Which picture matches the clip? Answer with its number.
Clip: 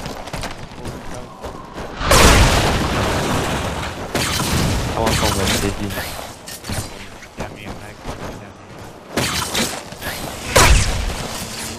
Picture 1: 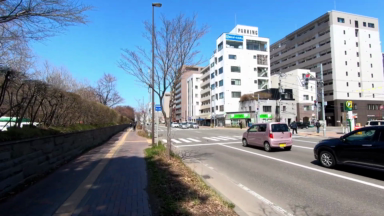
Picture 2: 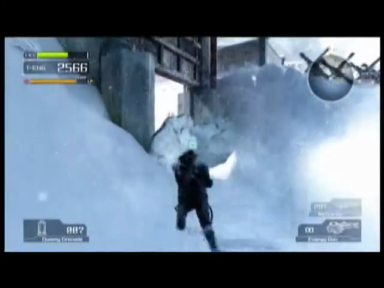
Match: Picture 2